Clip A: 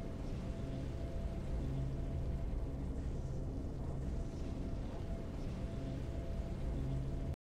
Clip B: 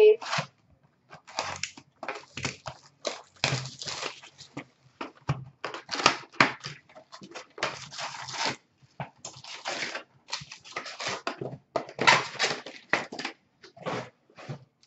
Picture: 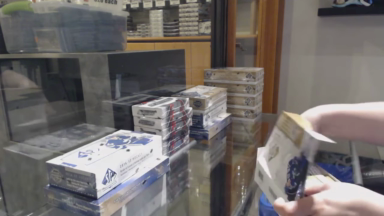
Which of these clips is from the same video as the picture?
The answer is B